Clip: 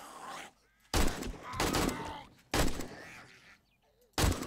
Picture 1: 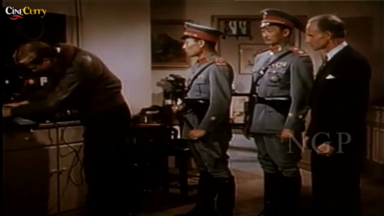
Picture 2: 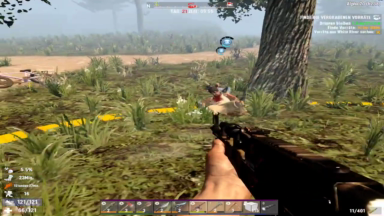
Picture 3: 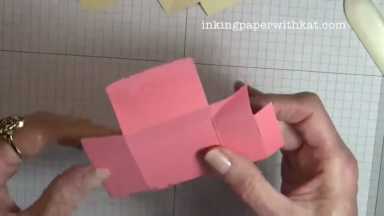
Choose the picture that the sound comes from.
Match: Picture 2